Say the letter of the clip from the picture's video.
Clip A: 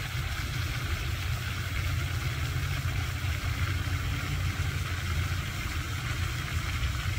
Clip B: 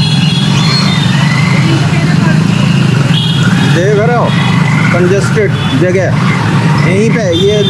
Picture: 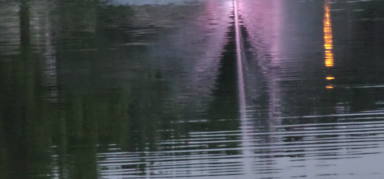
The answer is A